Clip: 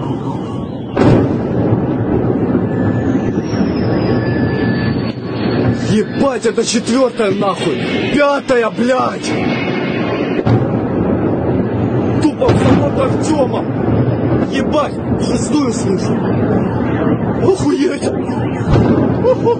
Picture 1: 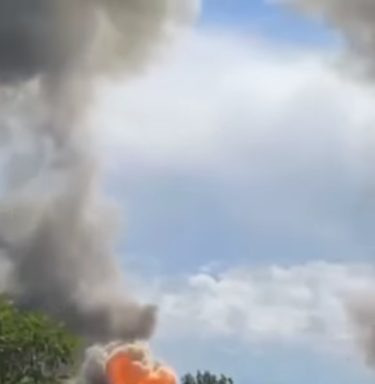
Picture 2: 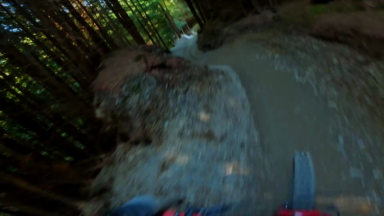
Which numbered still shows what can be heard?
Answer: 1